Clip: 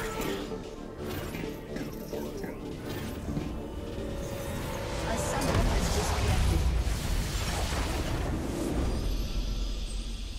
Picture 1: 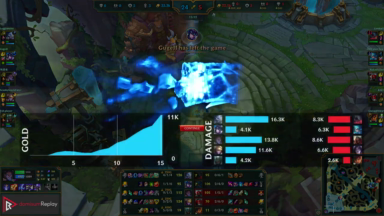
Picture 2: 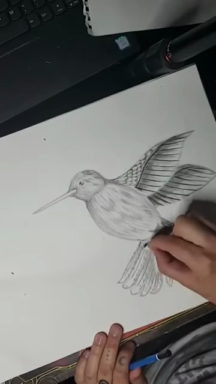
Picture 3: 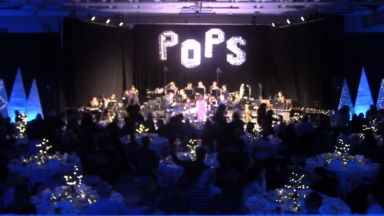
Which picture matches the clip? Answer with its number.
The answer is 1